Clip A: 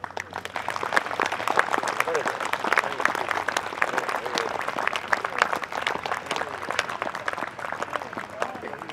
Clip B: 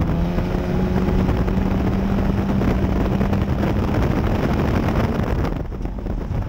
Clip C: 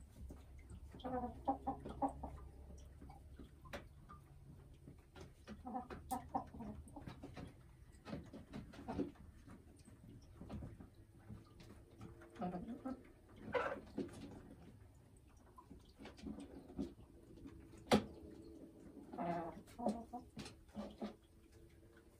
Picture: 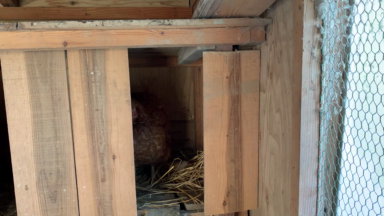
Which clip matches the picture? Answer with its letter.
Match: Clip C